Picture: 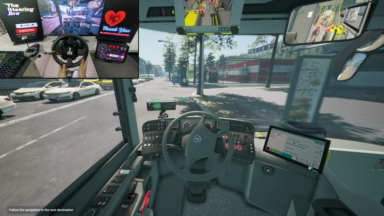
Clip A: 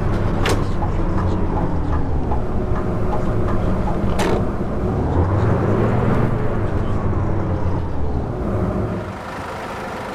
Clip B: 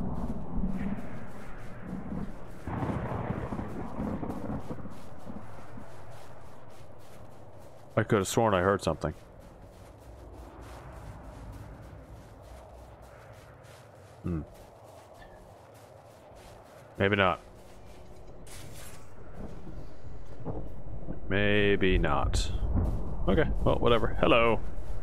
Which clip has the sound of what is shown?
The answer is A